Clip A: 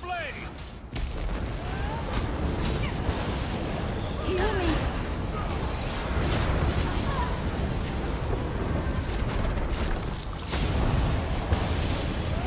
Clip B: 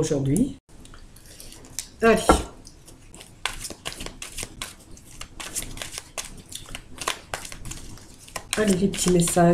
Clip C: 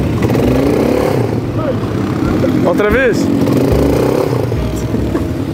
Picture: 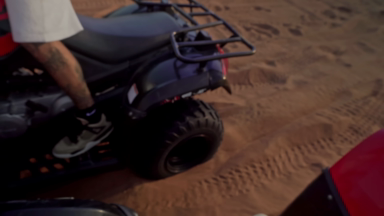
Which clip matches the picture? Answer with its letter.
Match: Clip C